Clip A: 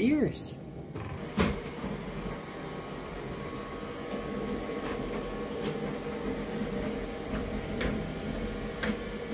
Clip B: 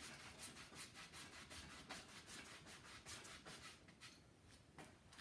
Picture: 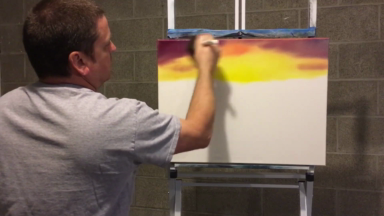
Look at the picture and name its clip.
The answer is B